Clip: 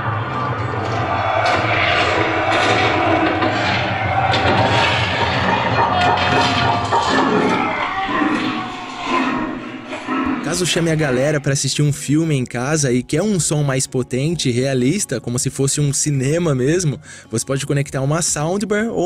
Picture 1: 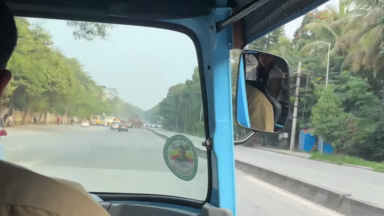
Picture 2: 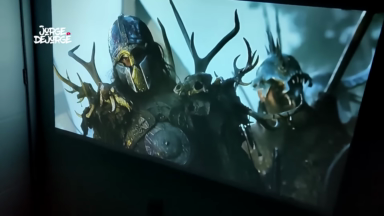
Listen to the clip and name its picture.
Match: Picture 2